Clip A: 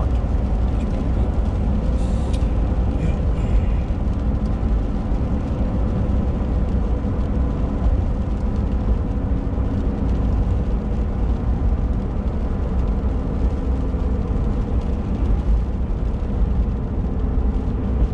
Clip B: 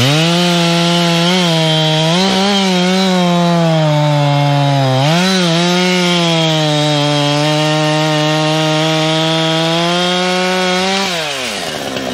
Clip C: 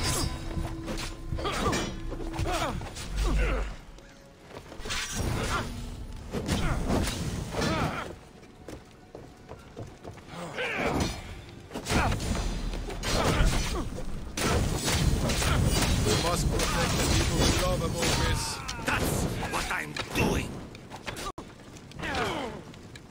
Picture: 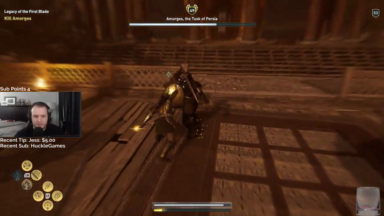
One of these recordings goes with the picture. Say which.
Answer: C